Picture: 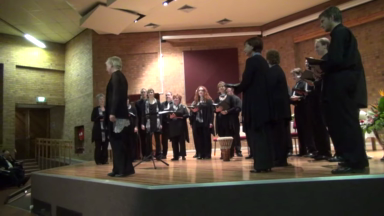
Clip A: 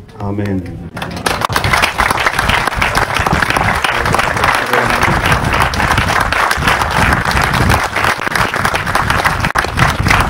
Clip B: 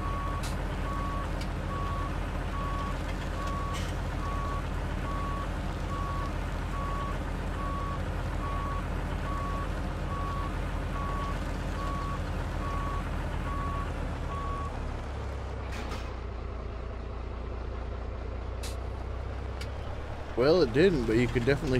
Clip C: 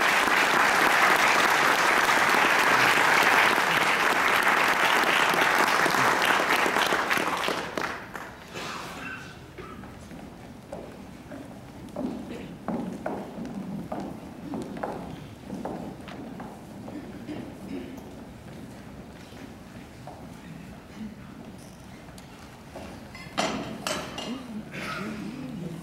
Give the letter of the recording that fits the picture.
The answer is C